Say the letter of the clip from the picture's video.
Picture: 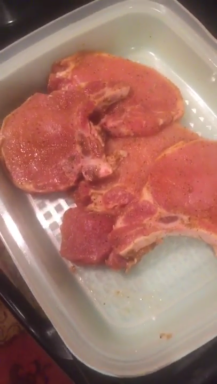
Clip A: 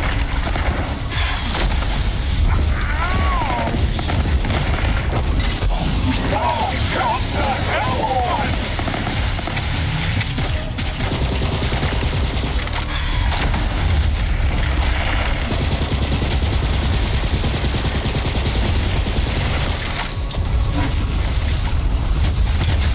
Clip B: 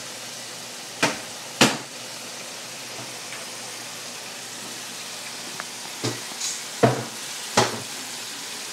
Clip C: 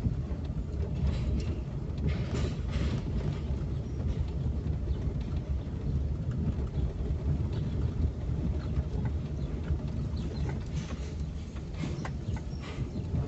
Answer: B